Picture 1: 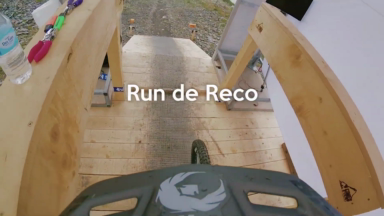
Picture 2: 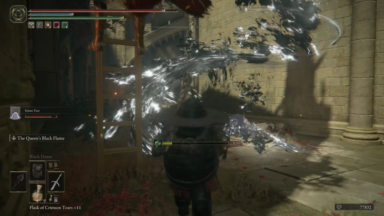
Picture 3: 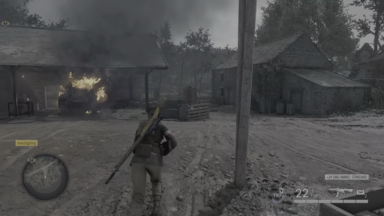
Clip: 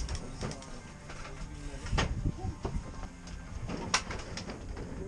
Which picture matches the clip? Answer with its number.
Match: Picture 1